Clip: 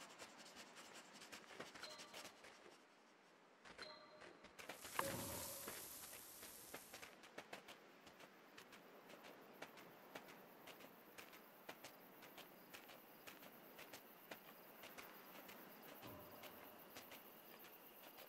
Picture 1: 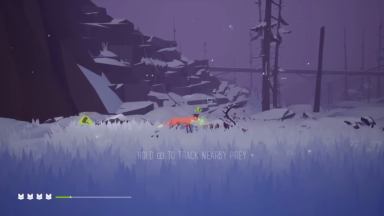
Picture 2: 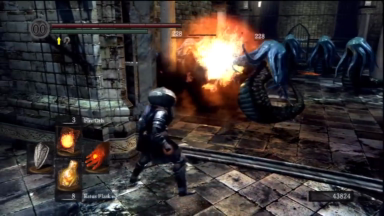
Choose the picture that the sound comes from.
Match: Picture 1